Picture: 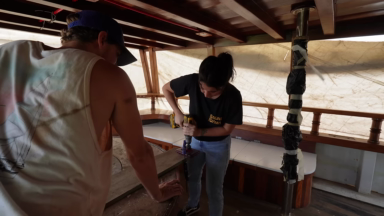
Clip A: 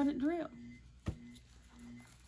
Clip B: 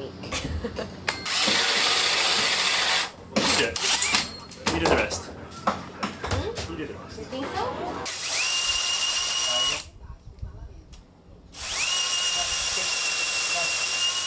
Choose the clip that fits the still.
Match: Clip B